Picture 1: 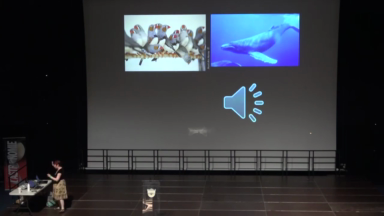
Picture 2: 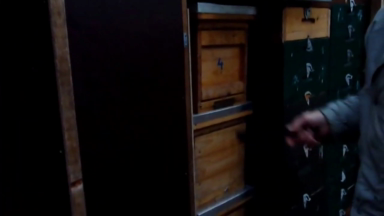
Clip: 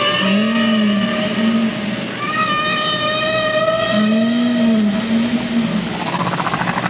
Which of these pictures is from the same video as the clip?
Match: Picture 1